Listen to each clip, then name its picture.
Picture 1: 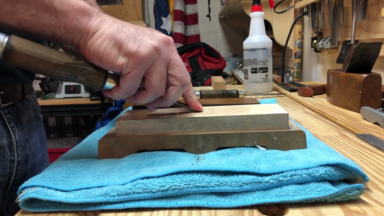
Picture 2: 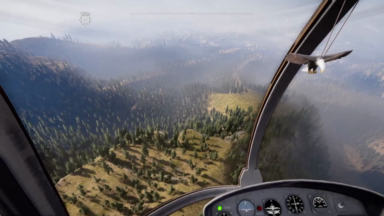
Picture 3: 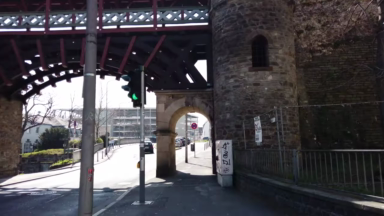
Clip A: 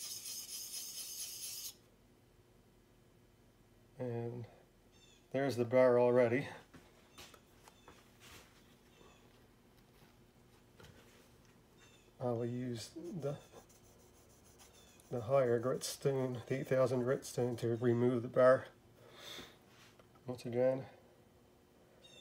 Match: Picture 1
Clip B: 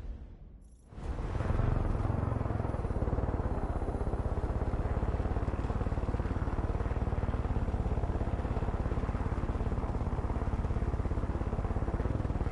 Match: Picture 2